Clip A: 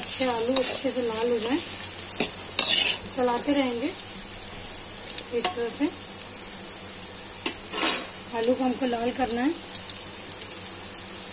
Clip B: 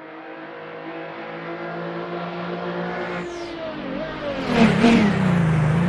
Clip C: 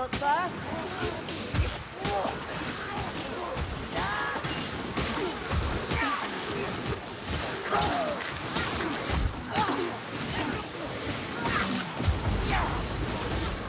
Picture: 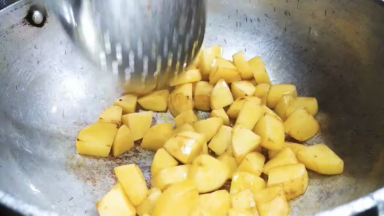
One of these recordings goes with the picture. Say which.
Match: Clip A